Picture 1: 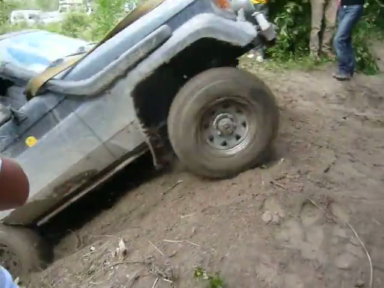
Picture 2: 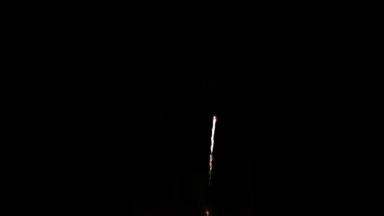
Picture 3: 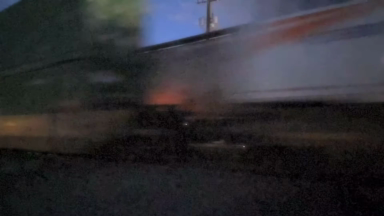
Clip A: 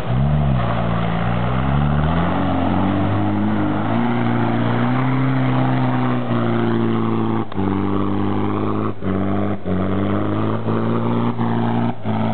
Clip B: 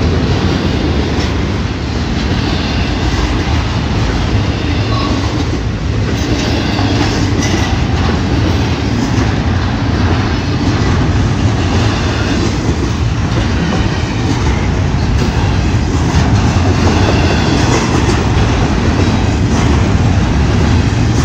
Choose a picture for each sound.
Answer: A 1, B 3